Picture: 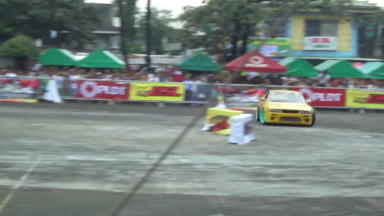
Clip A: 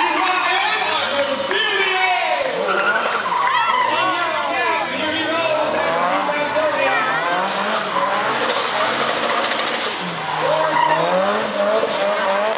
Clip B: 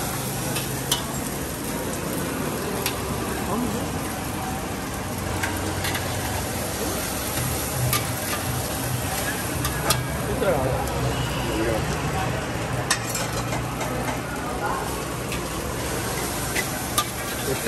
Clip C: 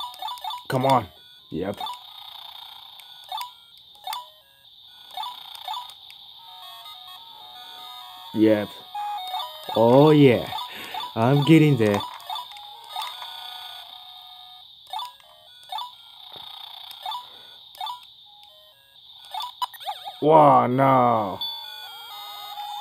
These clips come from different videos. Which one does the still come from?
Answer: A